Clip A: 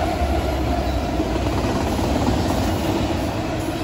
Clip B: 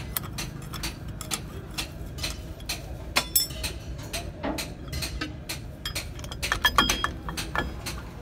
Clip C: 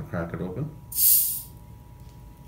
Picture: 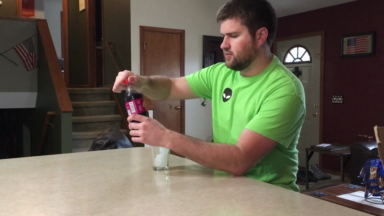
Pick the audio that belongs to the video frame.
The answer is C